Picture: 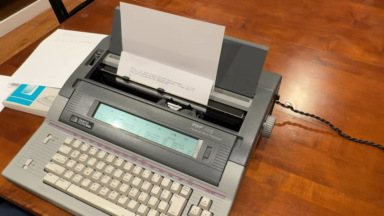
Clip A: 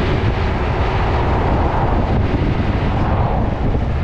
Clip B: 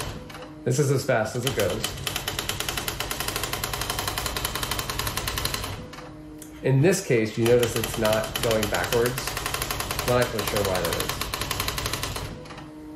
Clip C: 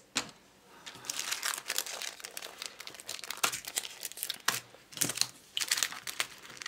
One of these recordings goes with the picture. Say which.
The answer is B